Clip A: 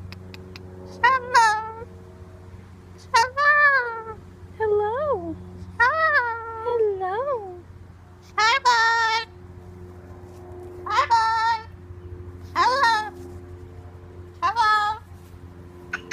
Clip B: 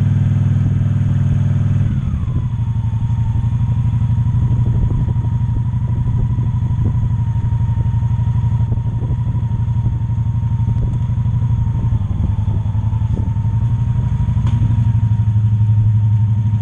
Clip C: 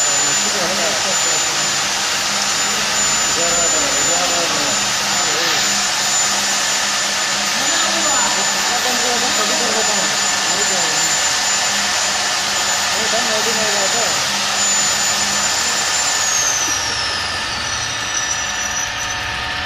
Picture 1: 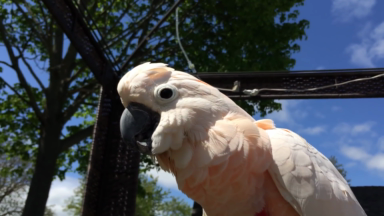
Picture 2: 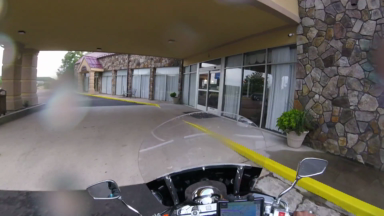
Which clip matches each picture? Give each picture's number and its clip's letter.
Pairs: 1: A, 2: B